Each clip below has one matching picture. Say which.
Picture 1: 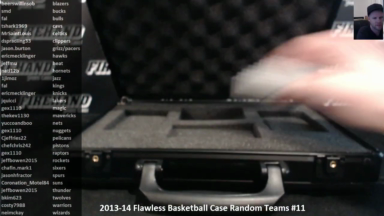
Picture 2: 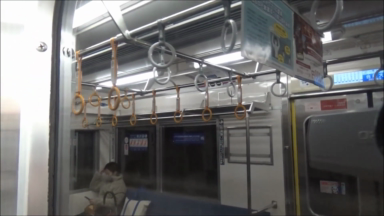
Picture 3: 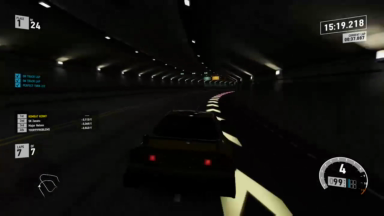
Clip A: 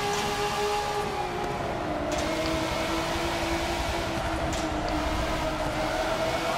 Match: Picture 3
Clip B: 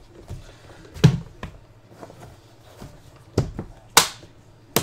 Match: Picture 1